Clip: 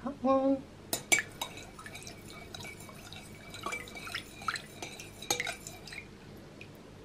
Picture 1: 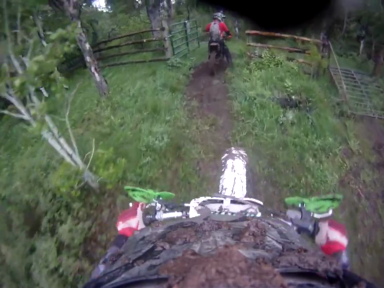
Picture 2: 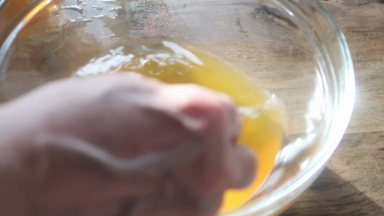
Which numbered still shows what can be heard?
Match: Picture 2